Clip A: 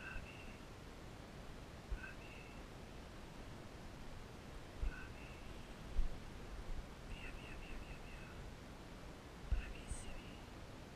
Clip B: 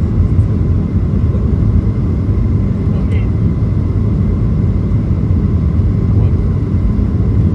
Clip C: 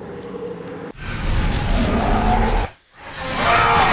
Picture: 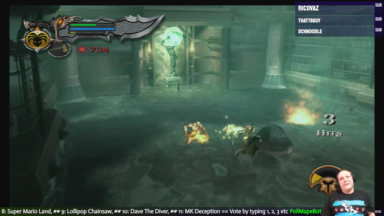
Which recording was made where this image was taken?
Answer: C